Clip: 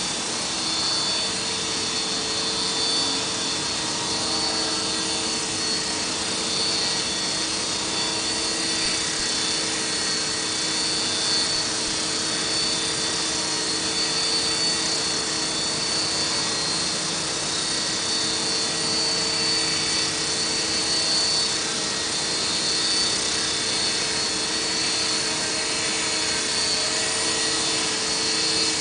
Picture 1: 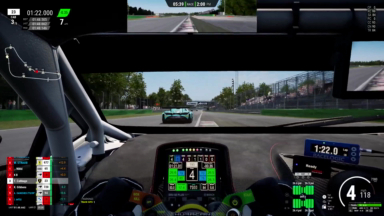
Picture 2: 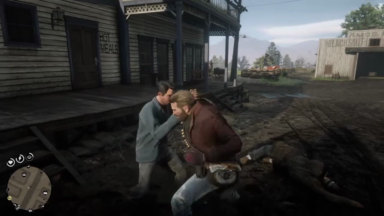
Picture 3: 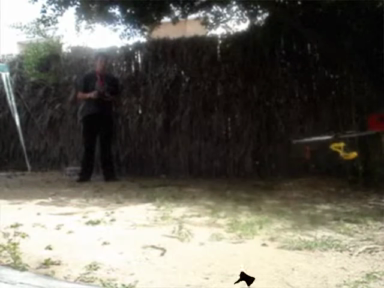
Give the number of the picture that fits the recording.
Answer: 3